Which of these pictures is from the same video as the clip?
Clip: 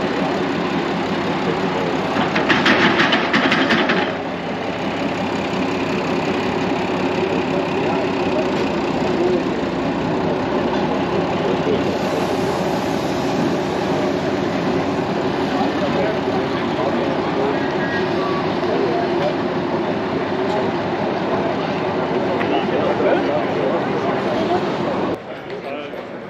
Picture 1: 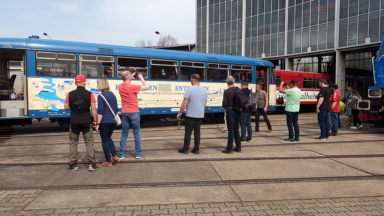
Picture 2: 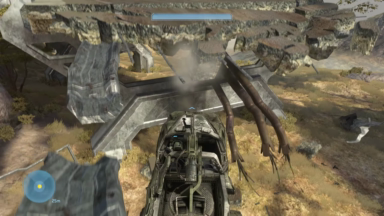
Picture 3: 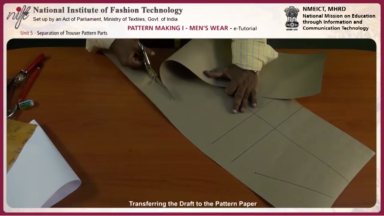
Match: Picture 1